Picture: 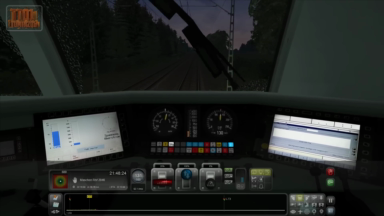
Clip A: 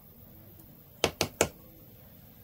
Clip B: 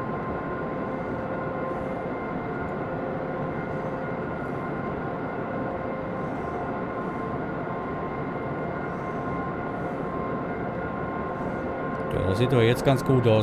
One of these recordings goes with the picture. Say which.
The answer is B